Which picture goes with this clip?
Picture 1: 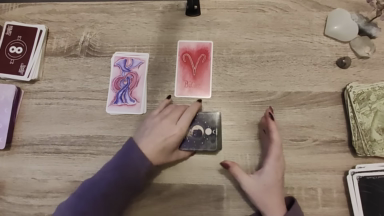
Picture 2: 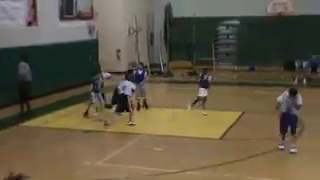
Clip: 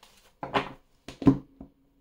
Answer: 1